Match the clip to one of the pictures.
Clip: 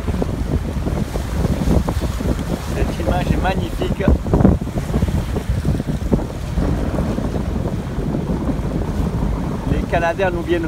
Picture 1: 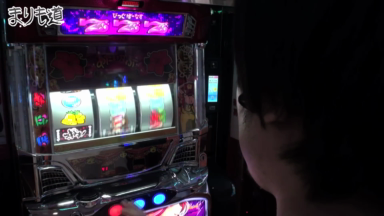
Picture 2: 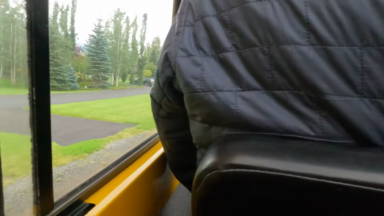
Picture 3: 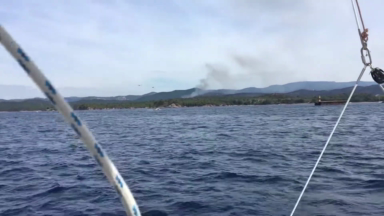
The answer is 3